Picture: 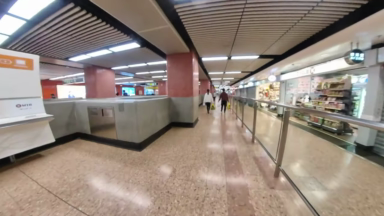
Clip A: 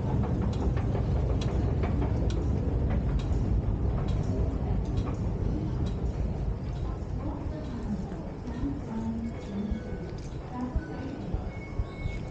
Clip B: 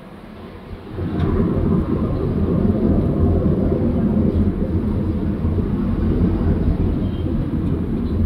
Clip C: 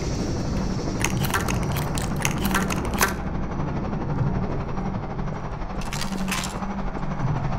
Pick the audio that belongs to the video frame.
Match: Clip A